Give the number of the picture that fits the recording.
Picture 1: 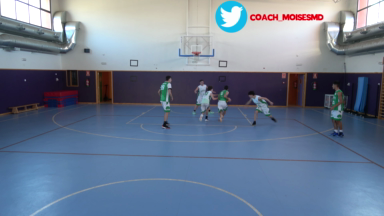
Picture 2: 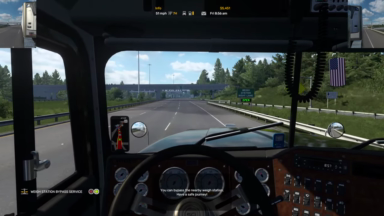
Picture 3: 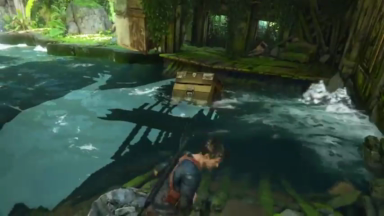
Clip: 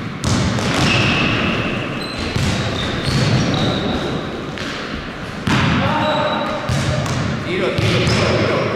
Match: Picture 1